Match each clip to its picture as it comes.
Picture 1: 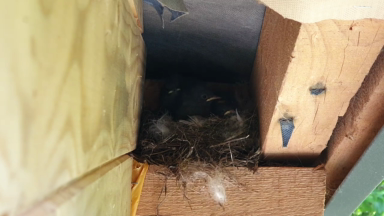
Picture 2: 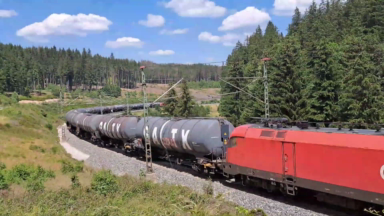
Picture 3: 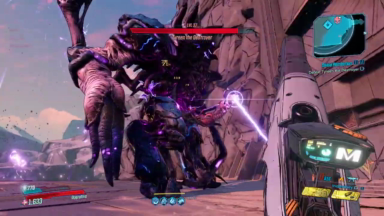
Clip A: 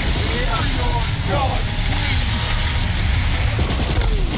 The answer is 3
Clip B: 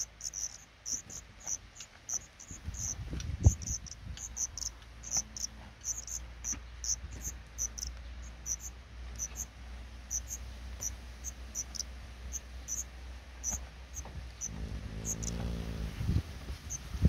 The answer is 1